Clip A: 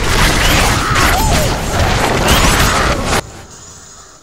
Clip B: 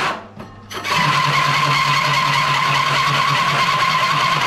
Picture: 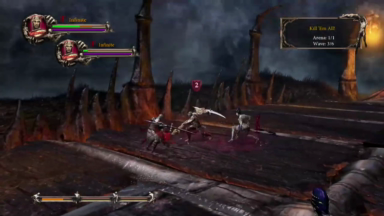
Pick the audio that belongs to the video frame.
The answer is A